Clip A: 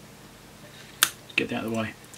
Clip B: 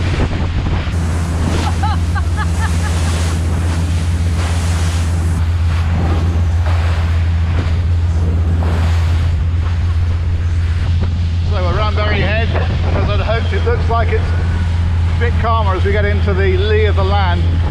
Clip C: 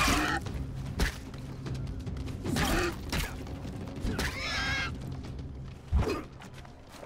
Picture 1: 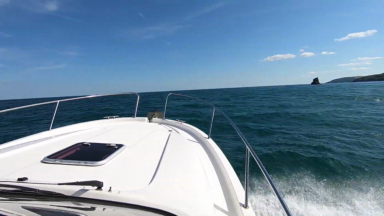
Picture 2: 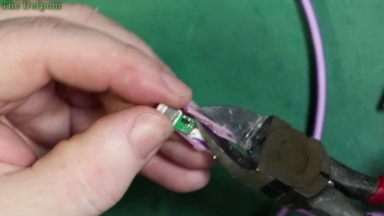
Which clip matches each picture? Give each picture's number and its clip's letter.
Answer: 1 B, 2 A